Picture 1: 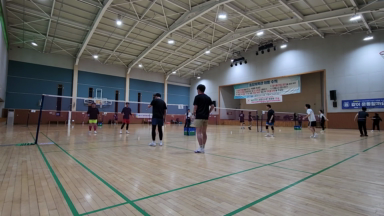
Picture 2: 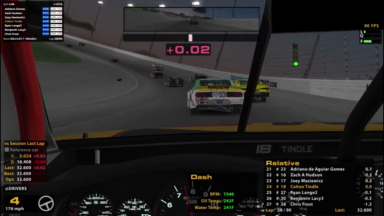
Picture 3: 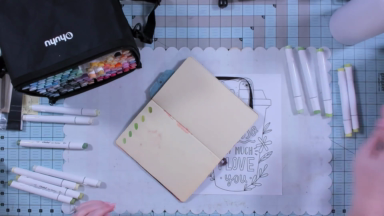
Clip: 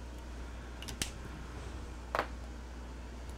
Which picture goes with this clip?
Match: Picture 3